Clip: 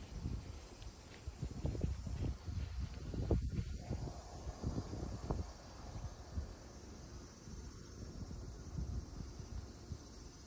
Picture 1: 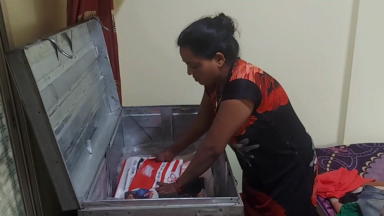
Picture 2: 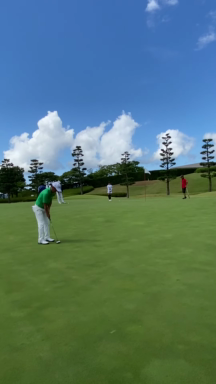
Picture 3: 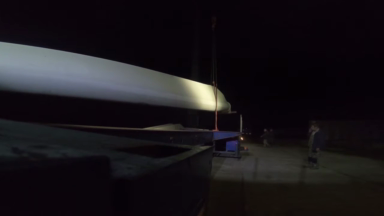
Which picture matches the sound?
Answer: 2